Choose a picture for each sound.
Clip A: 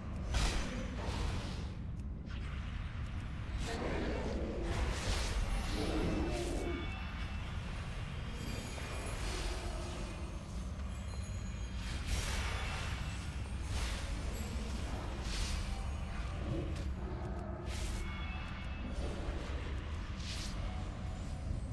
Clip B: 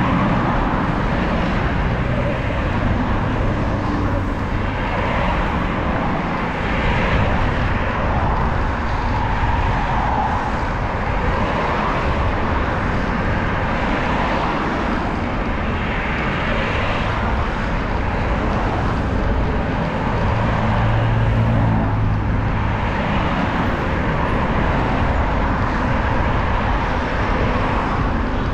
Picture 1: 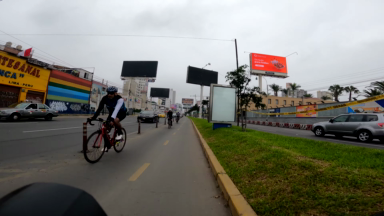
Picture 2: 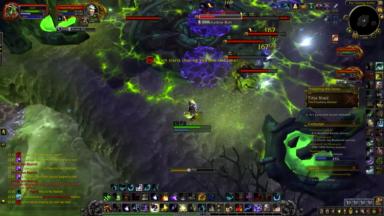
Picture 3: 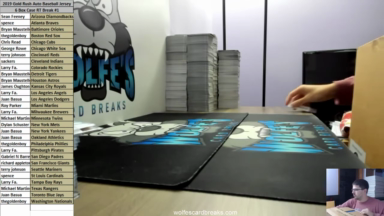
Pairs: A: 2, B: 1